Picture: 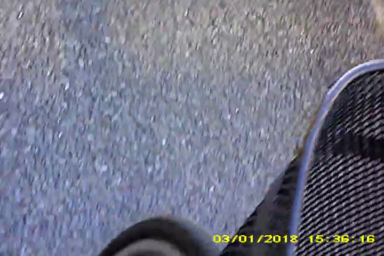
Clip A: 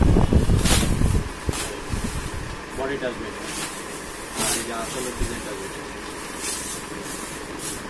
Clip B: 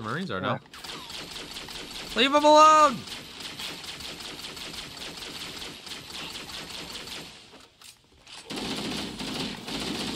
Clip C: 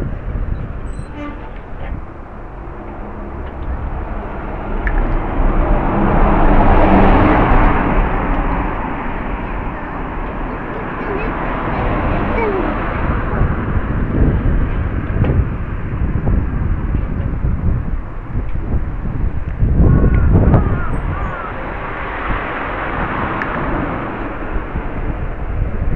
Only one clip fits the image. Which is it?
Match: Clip C